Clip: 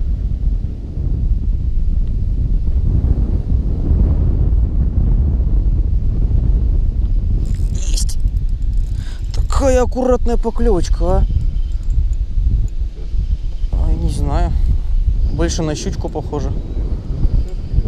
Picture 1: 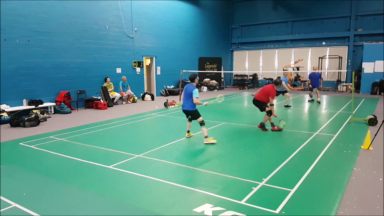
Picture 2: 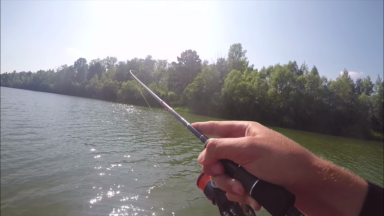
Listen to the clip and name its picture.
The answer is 2